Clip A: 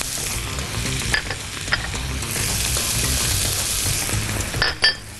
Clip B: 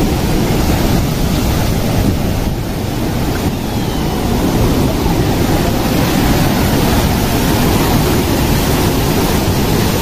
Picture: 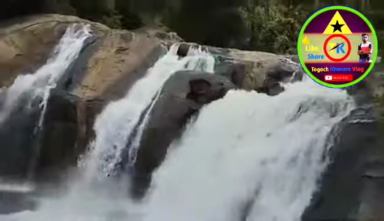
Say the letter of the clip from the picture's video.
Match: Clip B